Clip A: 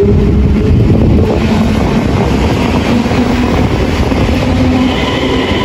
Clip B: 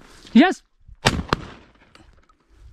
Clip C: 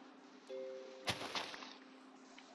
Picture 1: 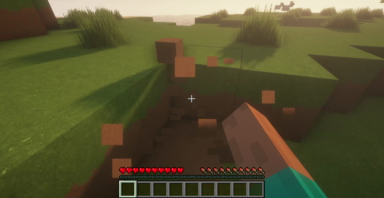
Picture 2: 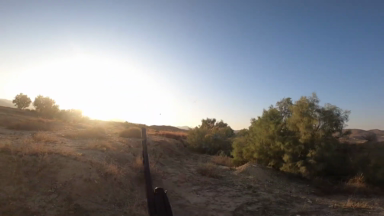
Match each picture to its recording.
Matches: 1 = C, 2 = B